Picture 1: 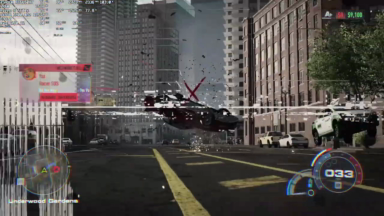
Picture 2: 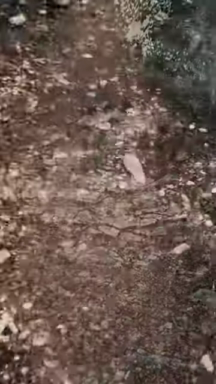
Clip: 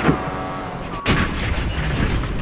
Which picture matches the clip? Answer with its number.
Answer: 1